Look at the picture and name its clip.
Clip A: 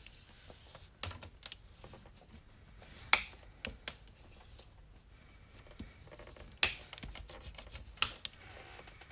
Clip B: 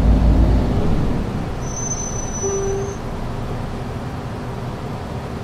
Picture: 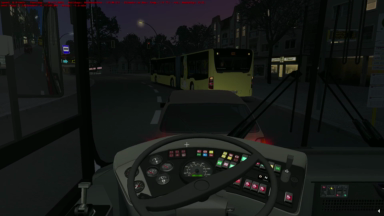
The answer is B